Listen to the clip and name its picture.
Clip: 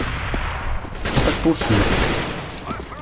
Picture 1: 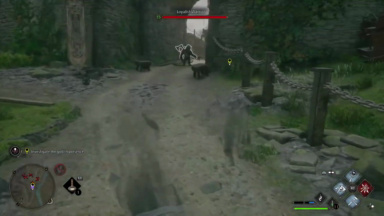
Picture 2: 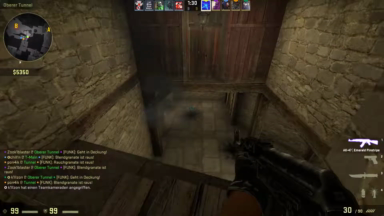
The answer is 2